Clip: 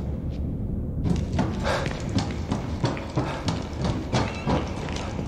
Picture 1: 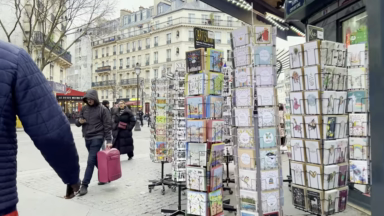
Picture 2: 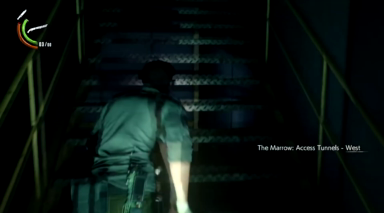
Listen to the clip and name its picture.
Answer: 2